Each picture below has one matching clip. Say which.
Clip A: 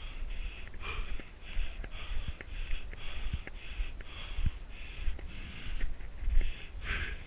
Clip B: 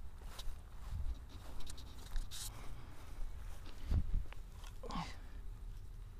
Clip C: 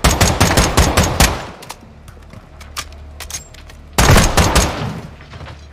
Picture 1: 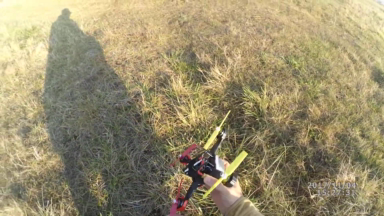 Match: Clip B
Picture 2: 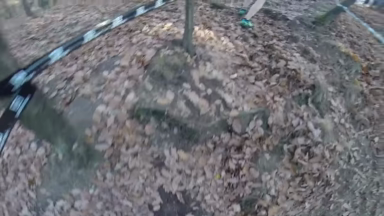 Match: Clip A